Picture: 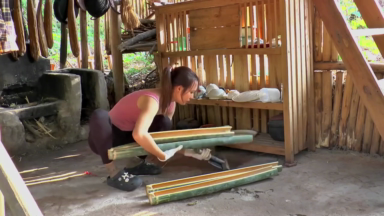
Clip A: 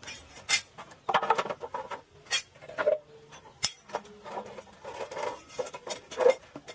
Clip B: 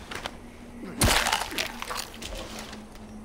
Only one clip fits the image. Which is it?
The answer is A